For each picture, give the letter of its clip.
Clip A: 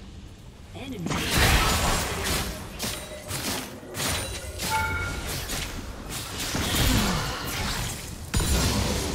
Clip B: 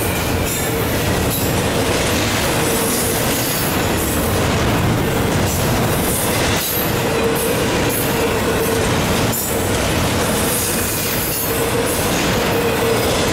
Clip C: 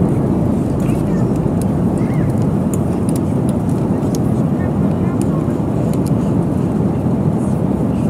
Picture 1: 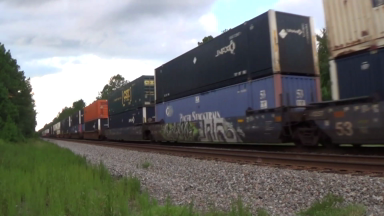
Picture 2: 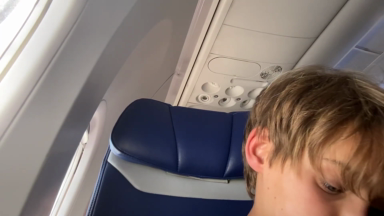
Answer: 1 B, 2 C